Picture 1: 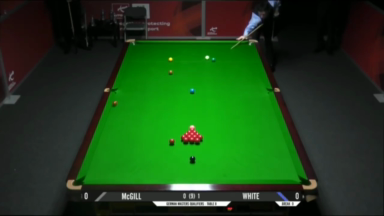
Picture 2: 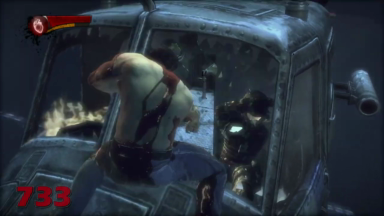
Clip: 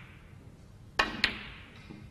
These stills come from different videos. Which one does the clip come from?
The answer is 1